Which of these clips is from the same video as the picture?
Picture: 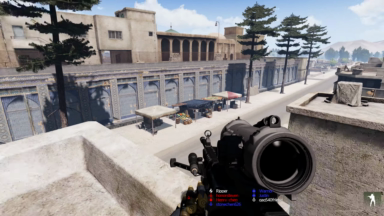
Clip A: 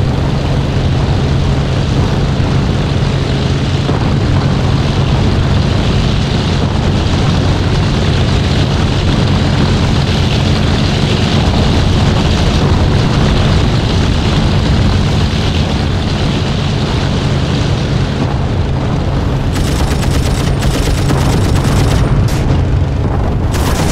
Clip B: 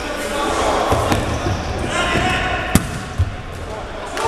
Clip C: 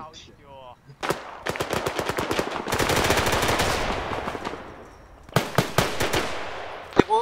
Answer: C